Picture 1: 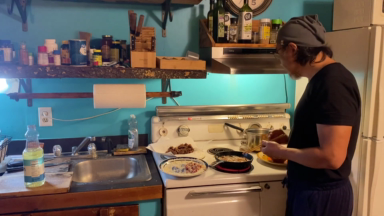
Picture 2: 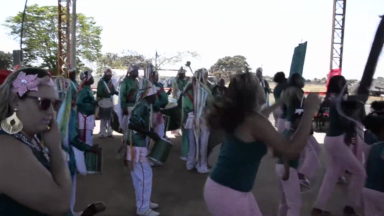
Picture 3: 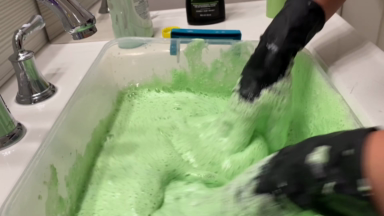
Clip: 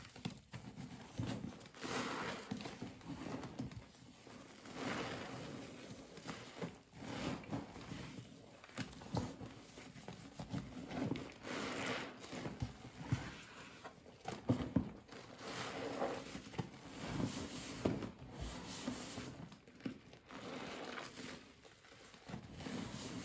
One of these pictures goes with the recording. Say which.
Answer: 3